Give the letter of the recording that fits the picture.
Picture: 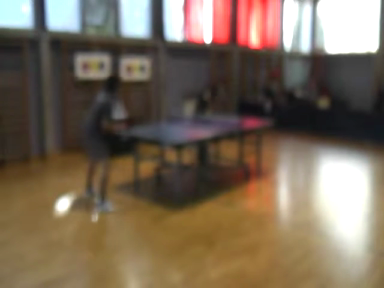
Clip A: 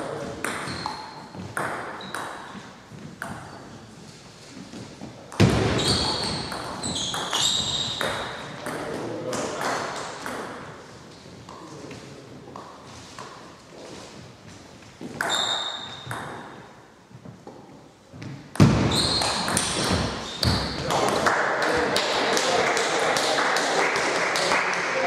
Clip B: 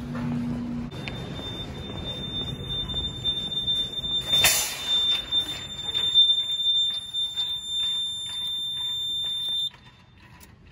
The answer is A